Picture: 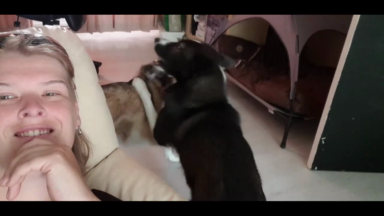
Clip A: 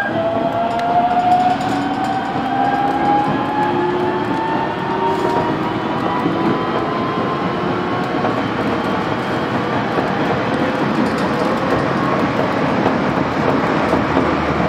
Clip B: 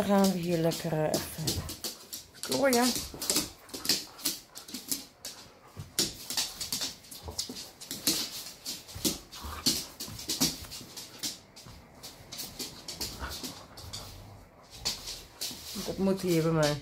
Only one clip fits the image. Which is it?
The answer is B